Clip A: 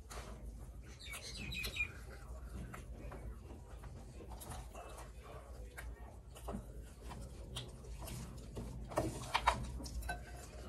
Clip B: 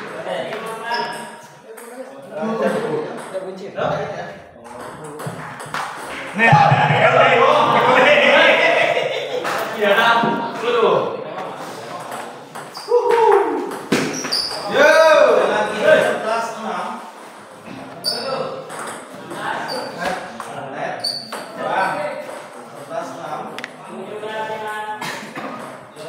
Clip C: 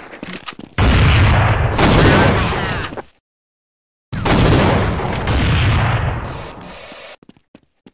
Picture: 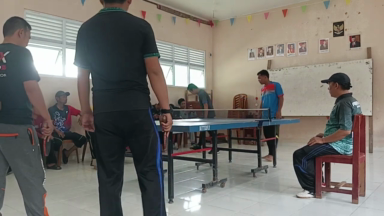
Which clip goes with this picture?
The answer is B